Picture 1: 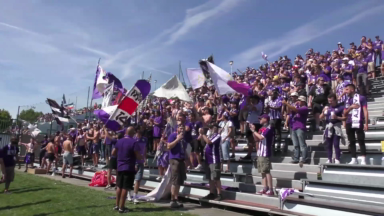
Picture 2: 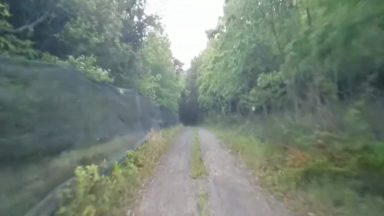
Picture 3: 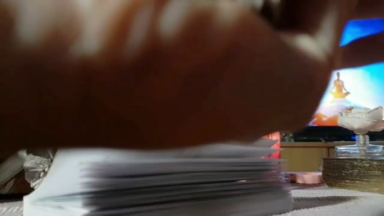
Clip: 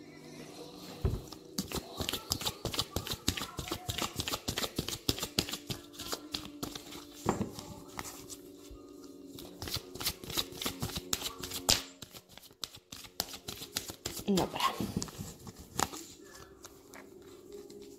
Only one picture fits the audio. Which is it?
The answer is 3